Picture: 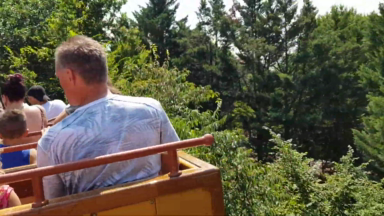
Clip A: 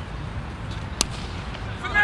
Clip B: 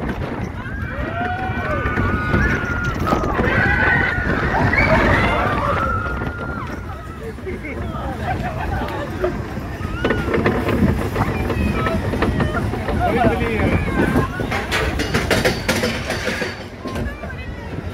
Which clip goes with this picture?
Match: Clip B